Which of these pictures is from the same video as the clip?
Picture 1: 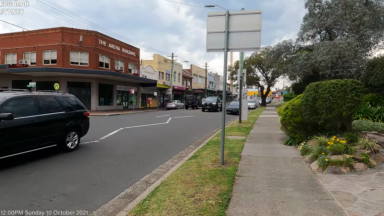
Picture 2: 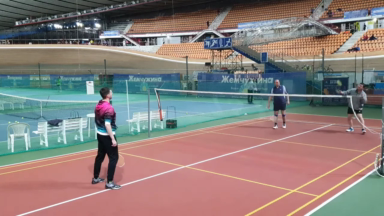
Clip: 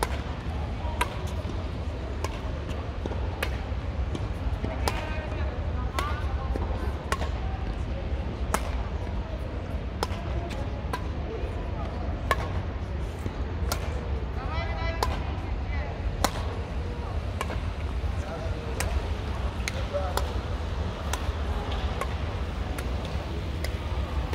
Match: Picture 2